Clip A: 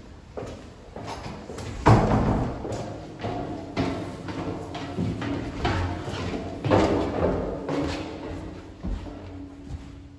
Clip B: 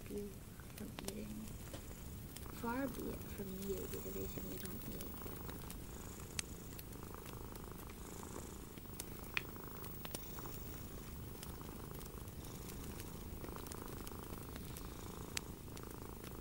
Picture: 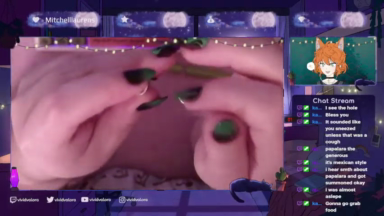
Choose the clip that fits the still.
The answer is B